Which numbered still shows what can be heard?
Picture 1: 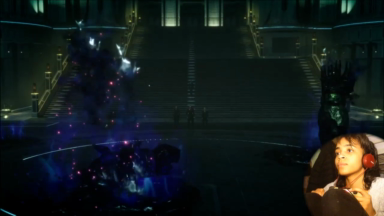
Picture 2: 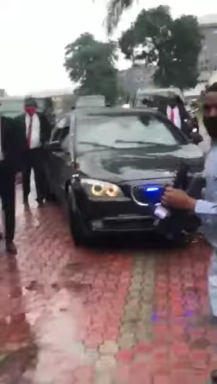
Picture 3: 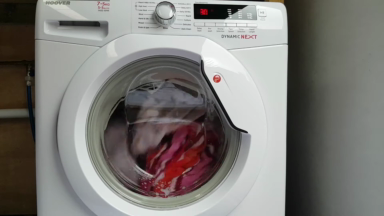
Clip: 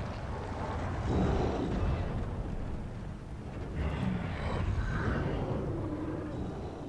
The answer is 1